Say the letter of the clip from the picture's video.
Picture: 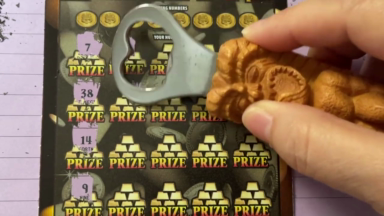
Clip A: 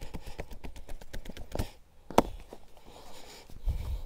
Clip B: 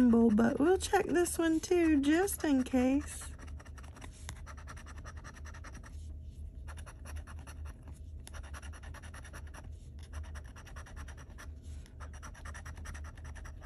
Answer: B